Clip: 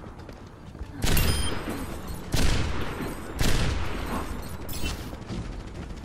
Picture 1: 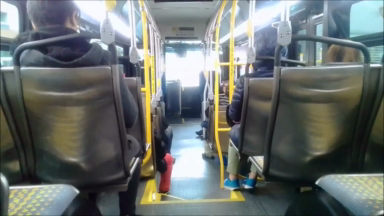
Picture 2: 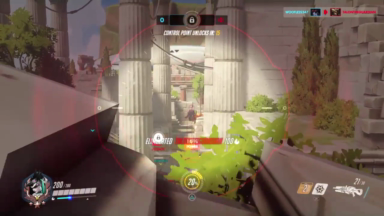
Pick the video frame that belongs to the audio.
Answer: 2